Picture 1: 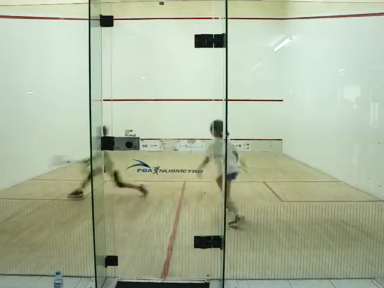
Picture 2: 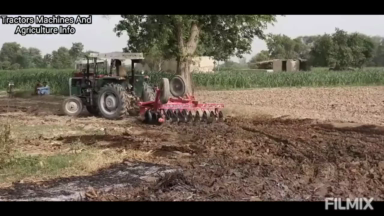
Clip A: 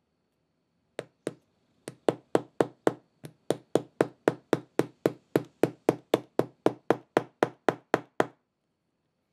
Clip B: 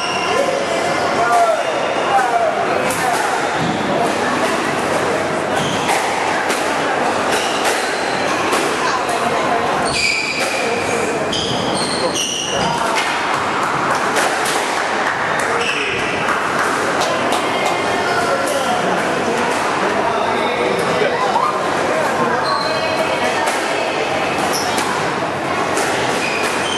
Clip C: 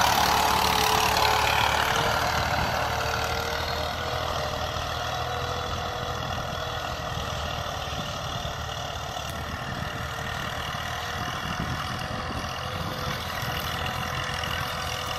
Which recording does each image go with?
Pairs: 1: B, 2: C